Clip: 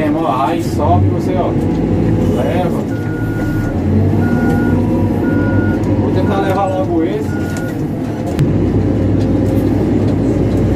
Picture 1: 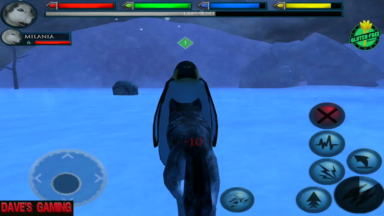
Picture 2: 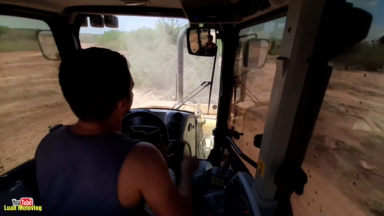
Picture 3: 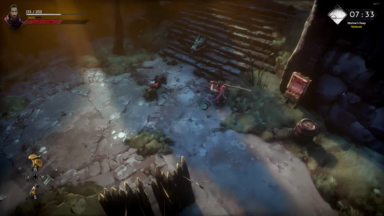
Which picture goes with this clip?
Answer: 2